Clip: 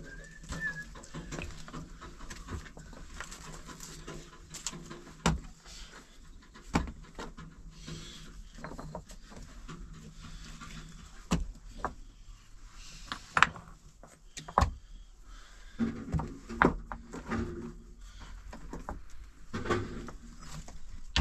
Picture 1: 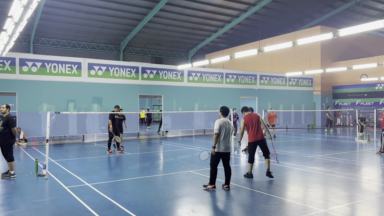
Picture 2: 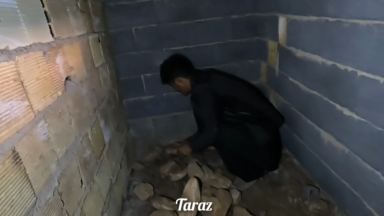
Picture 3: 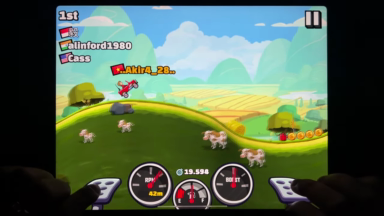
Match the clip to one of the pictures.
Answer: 2